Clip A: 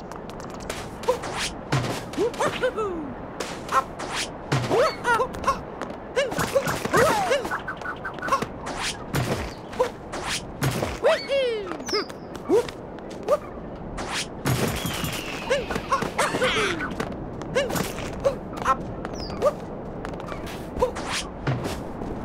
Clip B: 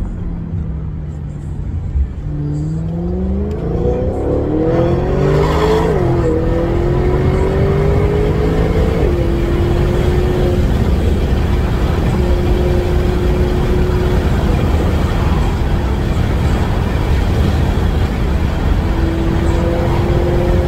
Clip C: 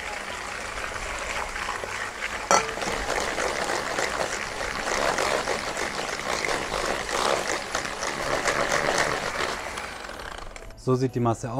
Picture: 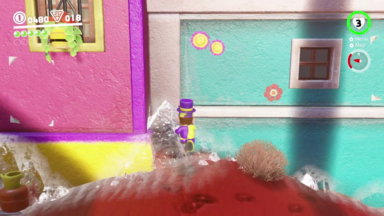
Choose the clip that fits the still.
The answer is A